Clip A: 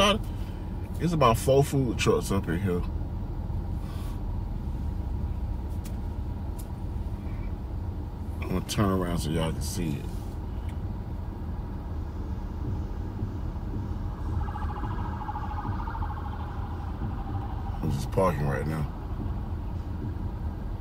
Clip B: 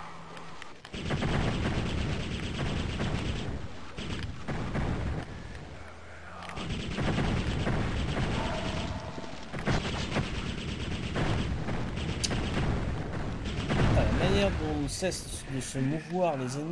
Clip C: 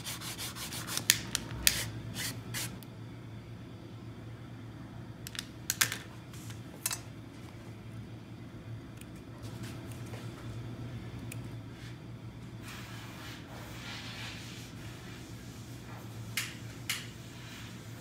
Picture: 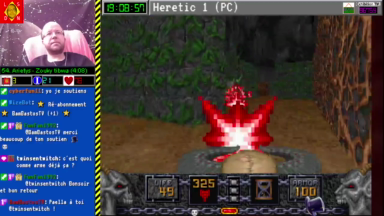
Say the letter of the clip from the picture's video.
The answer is B